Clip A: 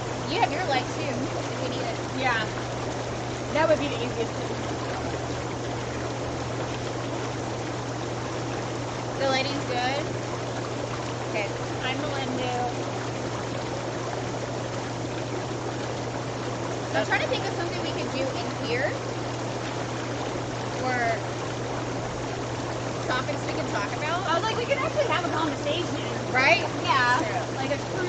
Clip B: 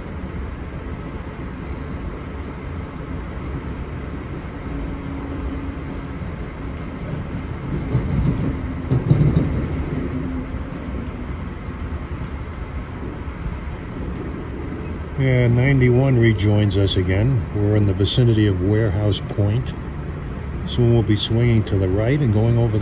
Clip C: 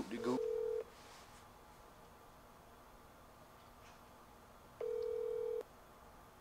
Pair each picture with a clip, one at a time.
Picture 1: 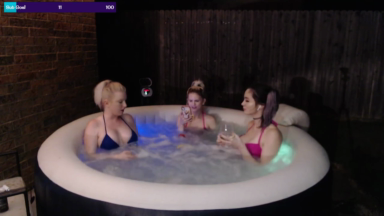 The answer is A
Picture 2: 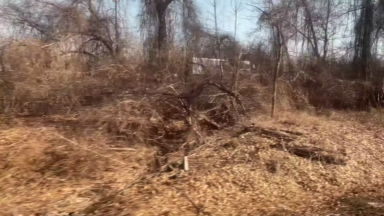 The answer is B